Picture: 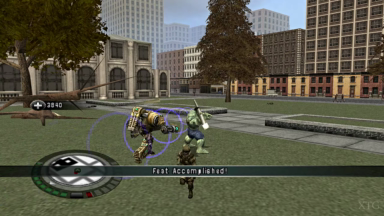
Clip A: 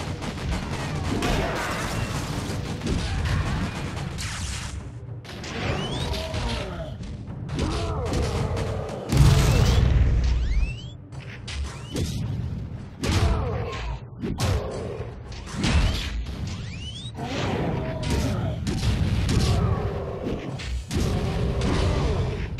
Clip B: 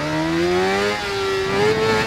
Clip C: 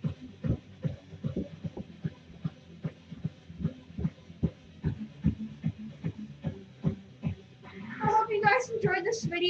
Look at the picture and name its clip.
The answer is A